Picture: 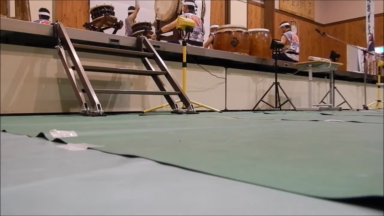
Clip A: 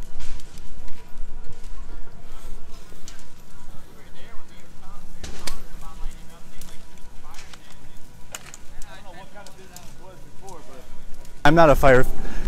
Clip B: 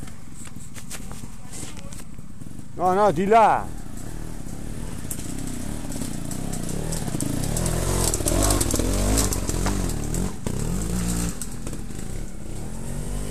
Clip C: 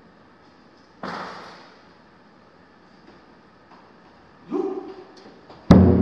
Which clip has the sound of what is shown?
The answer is C